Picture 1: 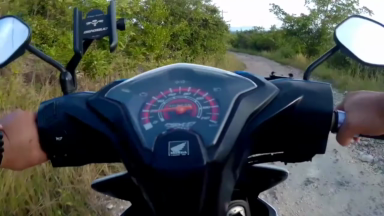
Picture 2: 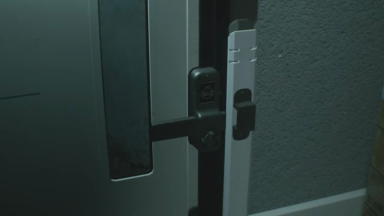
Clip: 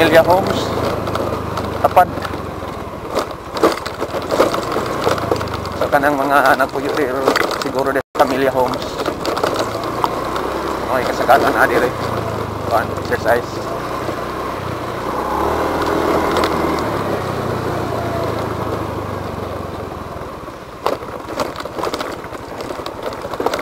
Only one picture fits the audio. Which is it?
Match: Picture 1